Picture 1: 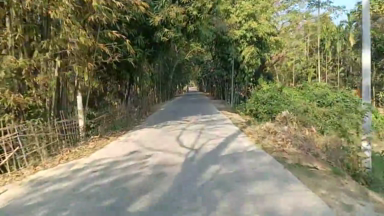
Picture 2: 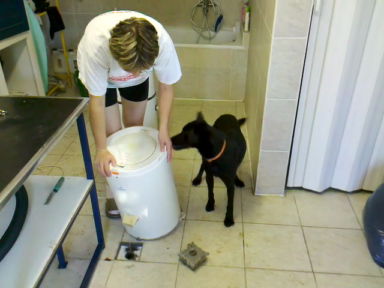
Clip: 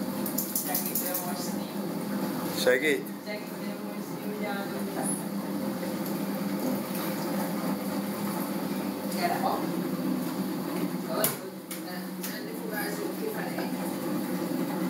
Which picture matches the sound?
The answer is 2